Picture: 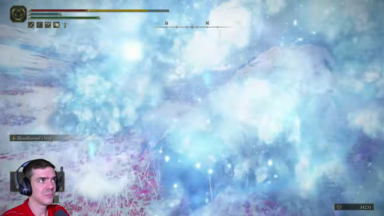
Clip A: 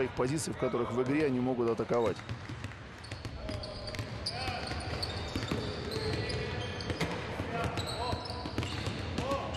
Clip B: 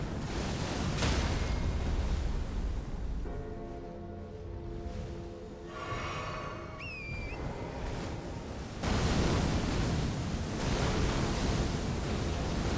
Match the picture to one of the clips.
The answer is B